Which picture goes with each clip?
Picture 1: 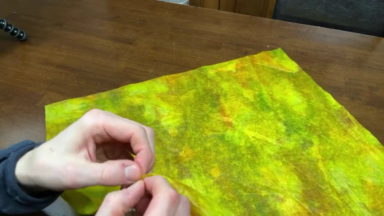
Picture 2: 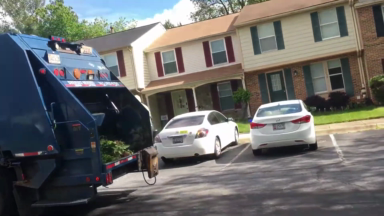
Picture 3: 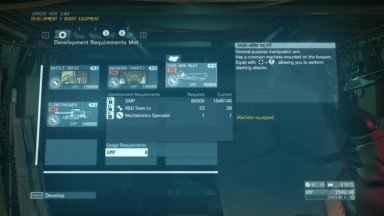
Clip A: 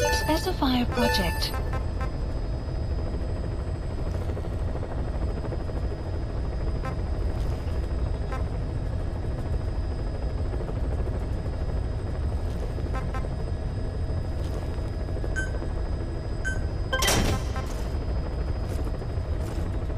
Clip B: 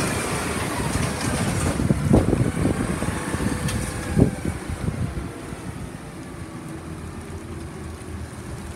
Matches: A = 3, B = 2